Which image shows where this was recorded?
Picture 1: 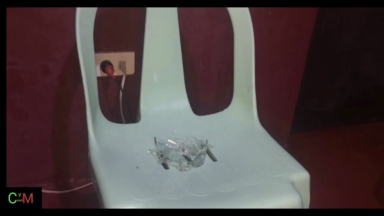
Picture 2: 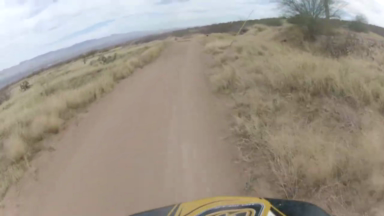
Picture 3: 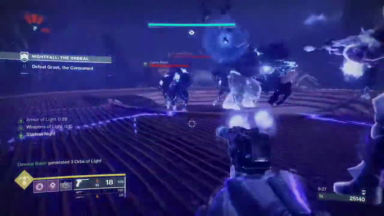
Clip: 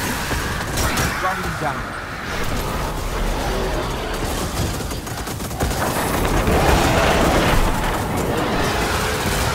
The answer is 3